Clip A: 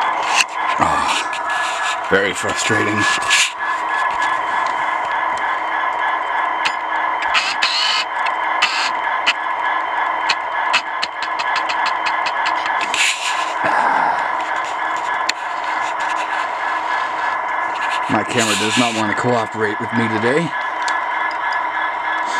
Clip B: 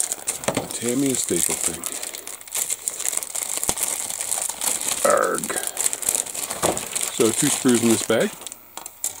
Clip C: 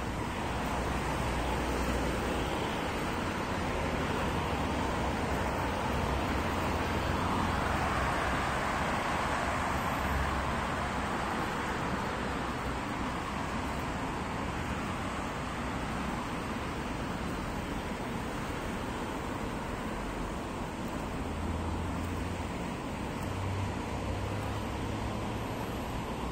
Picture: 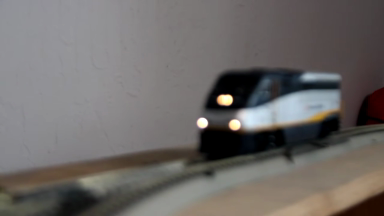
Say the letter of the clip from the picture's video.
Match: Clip A